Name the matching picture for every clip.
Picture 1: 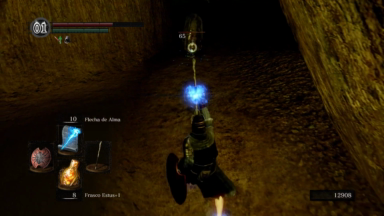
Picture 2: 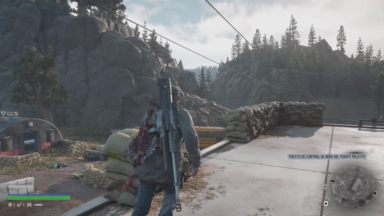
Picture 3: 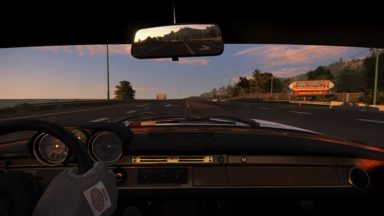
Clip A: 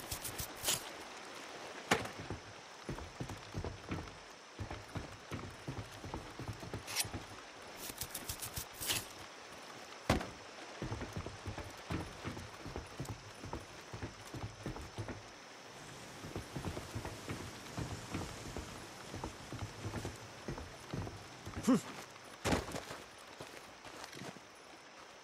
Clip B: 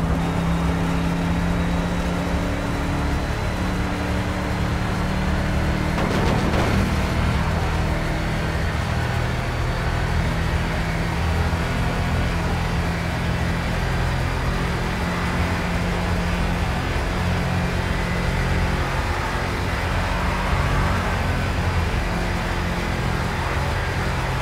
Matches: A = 2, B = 3